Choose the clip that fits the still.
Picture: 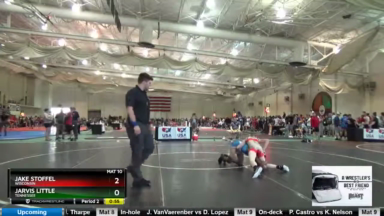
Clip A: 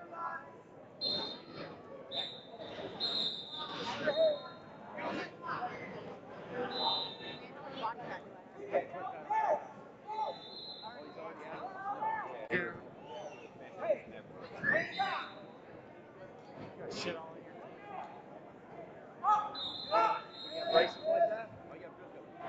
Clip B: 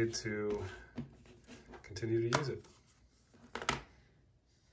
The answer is A